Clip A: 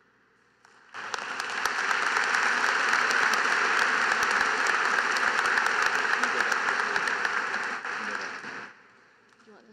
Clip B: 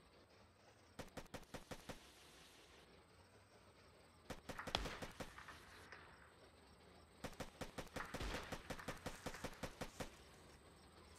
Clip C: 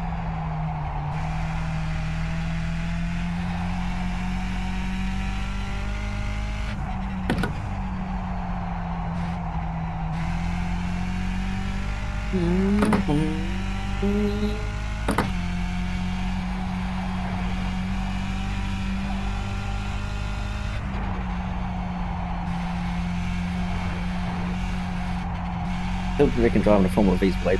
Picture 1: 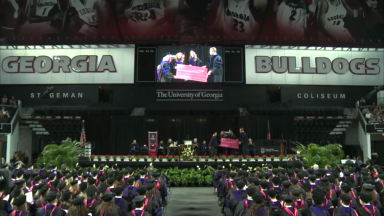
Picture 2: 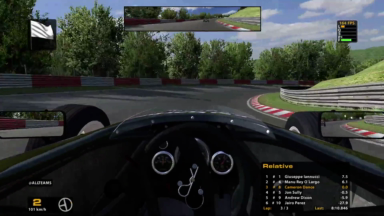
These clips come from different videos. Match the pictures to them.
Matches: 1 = A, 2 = C